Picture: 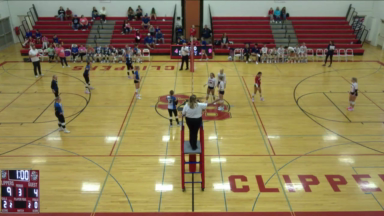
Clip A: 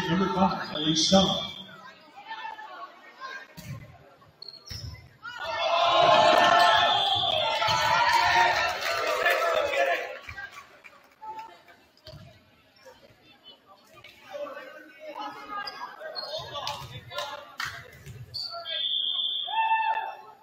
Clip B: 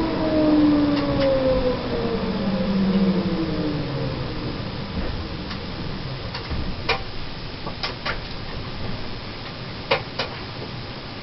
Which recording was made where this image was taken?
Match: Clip A